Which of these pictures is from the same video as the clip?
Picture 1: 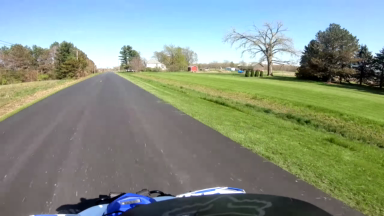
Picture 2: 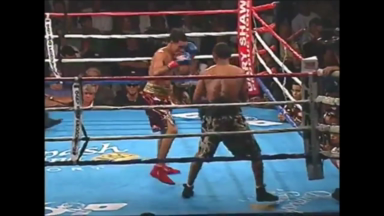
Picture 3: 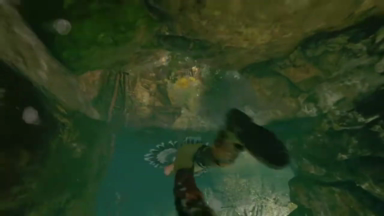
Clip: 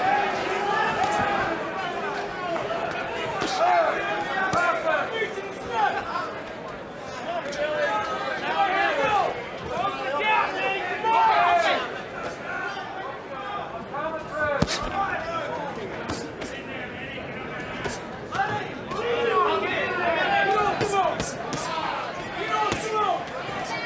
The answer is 2